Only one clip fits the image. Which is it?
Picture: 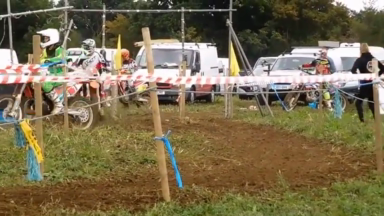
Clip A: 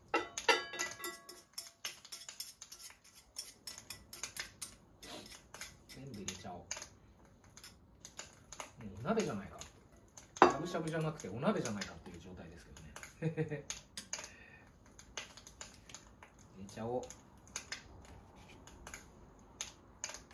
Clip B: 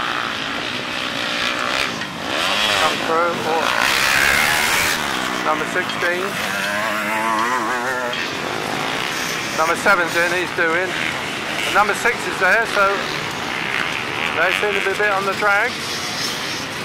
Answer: B